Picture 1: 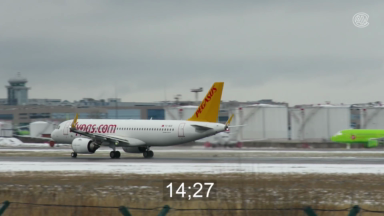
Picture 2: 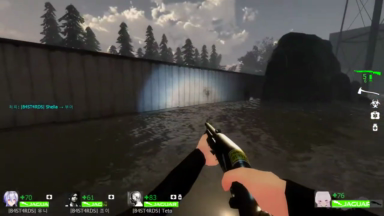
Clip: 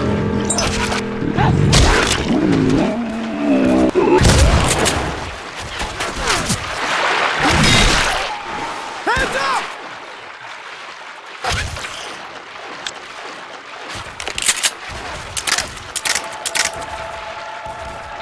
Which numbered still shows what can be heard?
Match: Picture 2